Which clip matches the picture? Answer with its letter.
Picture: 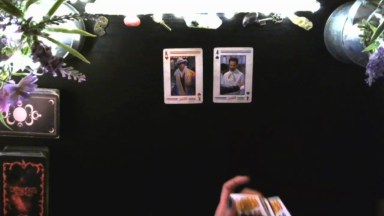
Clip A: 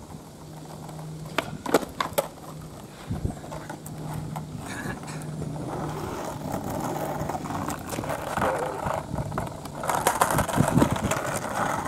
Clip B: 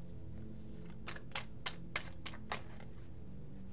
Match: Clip B